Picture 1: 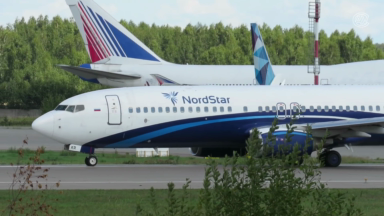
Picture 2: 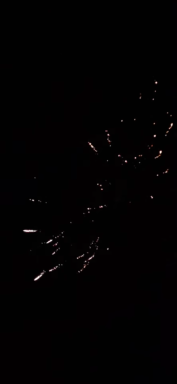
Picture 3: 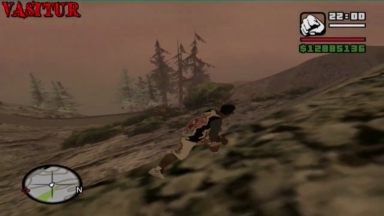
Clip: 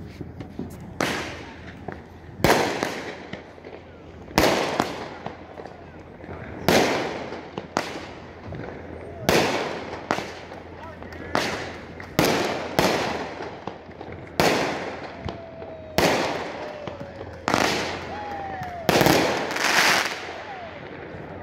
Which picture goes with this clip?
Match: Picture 2